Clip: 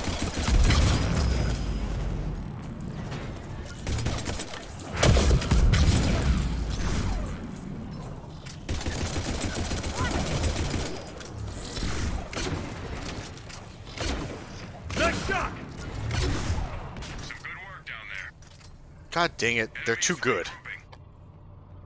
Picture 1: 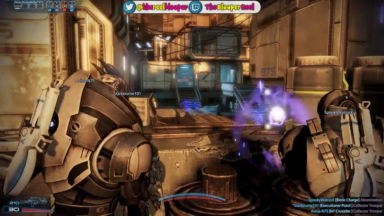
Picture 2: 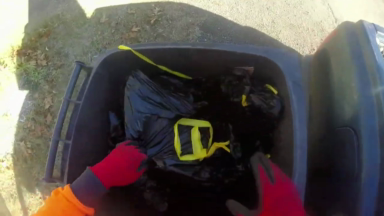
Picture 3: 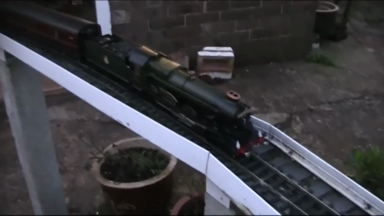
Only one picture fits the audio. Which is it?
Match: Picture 1